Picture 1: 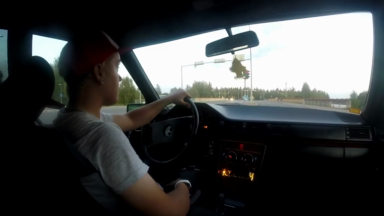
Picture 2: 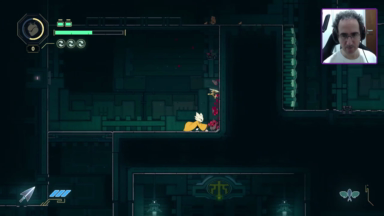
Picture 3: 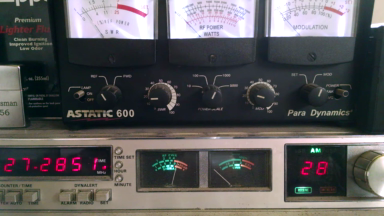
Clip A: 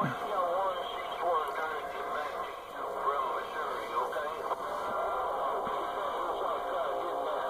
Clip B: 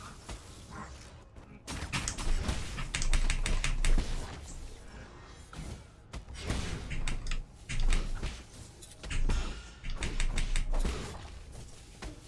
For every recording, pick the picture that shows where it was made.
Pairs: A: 3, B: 2